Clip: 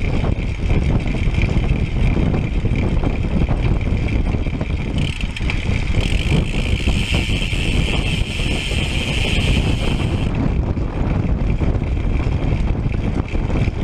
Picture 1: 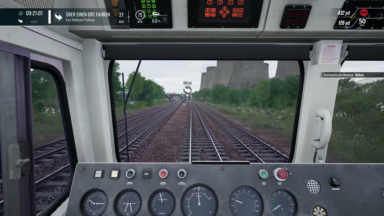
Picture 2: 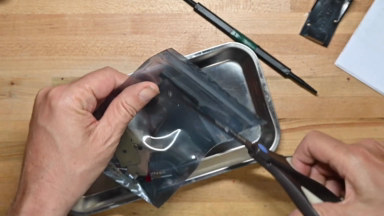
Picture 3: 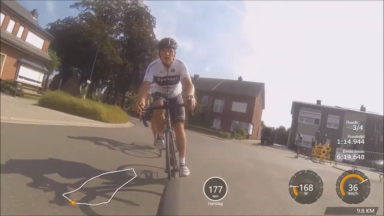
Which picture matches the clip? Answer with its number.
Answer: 3